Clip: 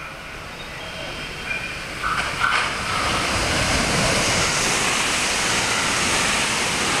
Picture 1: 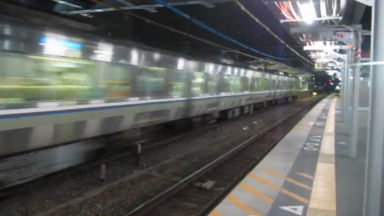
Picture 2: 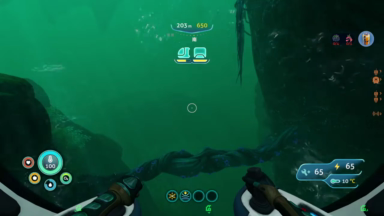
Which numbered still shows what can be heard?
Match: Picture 1